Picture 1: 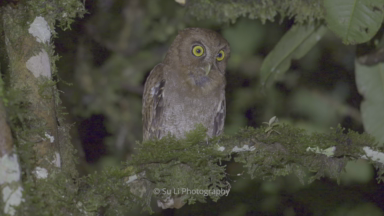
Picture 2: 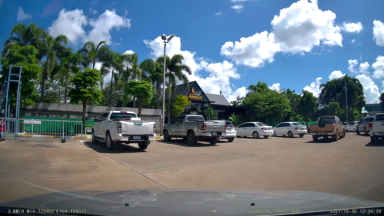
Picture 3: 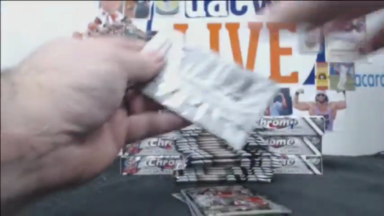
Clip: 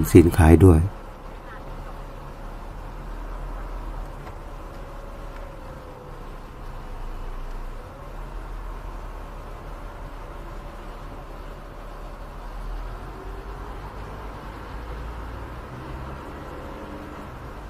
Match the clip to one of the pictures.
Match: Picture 2